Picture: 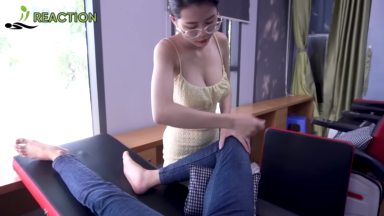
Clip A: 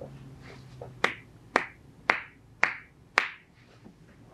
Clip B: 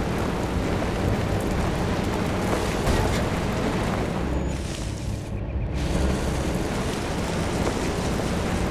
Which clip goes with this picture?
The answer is A